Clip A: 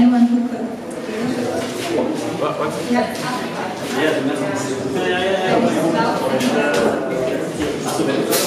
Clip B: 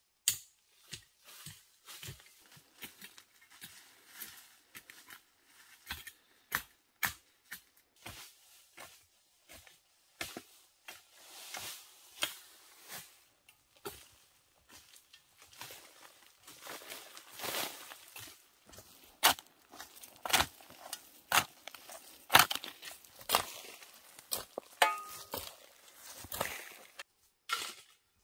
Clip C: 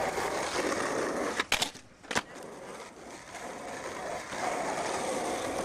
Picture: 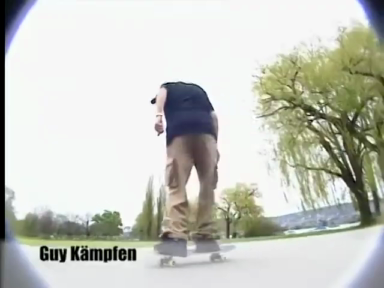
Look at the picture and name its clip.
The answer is C